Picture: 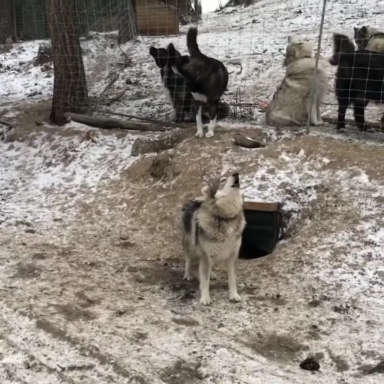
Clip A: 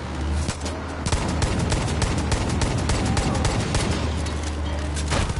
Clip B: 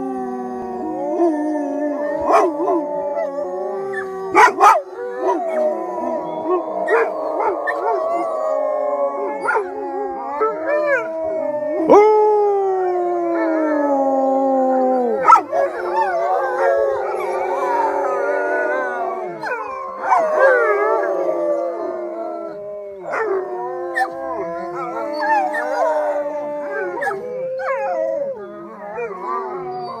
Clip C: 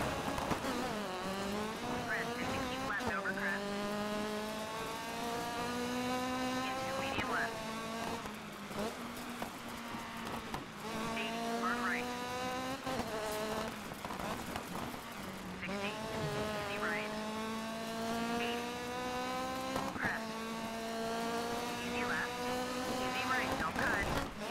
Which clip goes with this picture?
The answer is B